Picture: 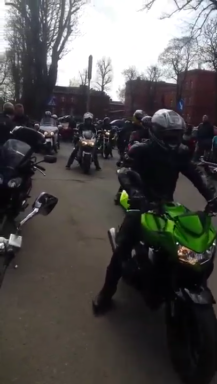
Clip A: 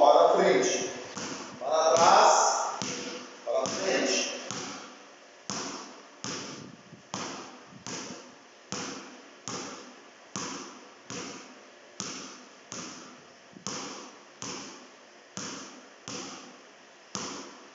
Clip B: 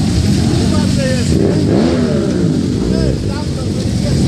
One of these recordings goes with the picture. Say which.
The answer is B